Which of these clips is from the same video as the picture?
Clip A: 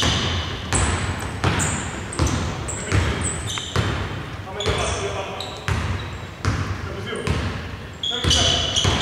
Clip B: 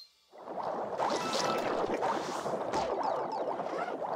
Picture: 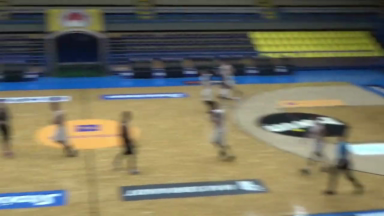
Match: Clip A